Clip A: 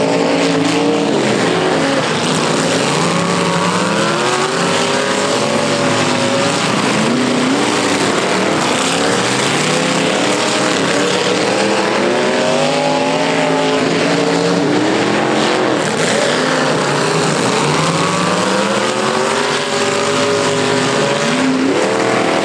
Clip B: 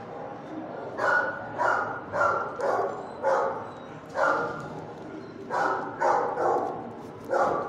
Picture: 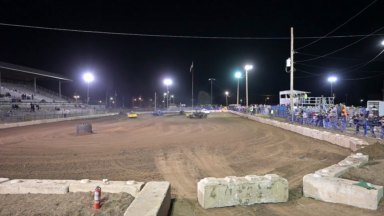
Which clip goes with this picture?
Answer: A